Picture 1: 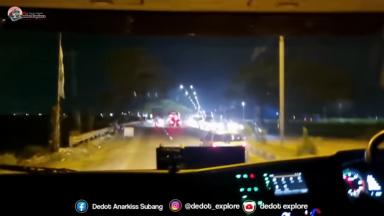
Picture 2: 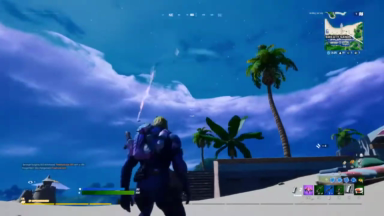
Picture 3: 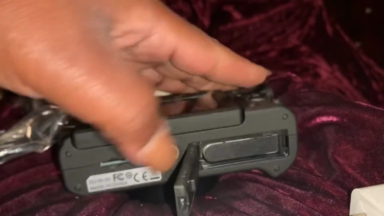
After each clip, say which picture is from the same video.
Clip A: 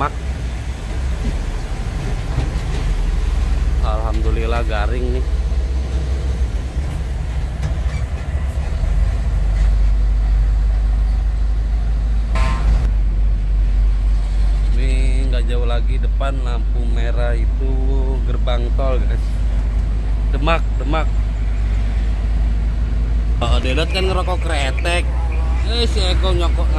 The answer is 1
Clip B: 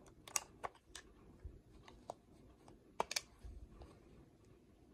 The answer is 3